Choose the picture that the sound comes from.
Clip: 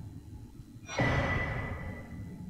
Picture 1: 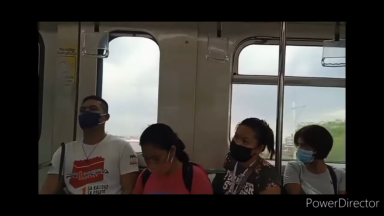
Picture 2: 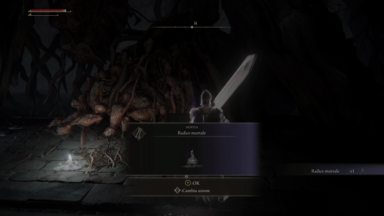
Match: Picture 2